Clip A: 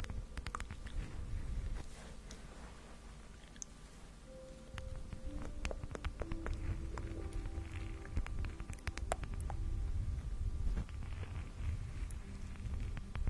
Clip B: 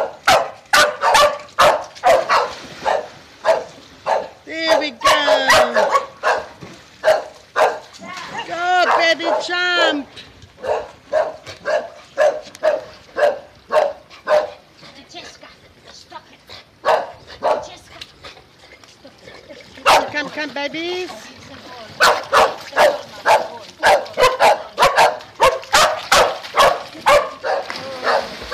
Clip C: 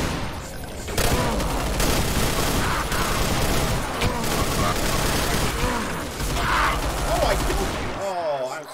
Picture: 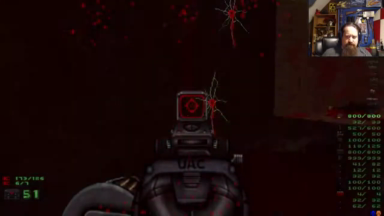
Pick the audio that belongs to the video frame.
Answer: C